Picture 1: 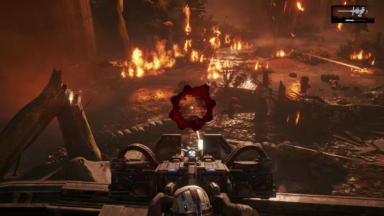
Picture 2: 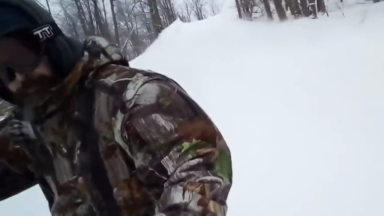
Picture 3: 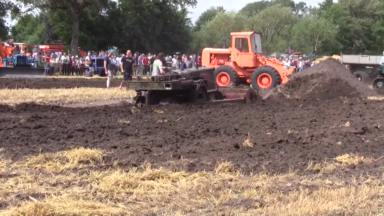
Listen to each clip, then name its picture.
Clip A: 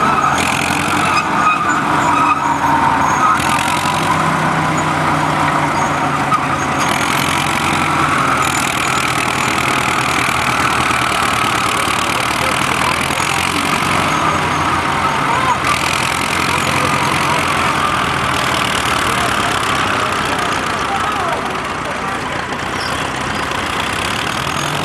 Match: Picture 3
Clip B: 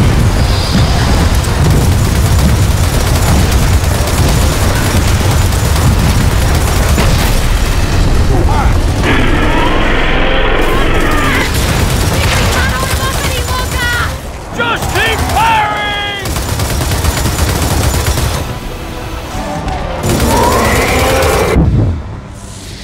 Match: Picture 1